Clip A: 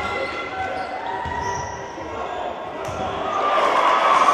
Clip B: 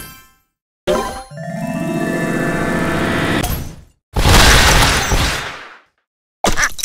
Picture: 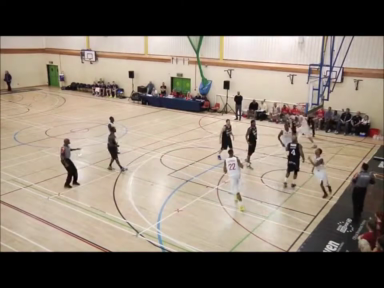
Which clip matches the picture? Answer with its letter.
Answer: A